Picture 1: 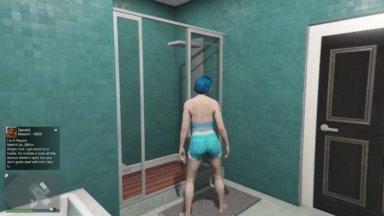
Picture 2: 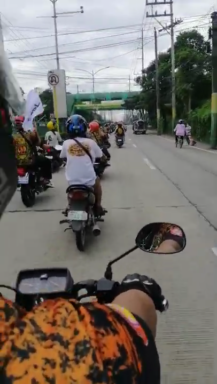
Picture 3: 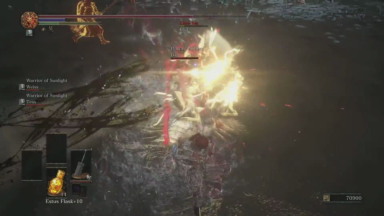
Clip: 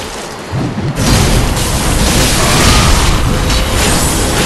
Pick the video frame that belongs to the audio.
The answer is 3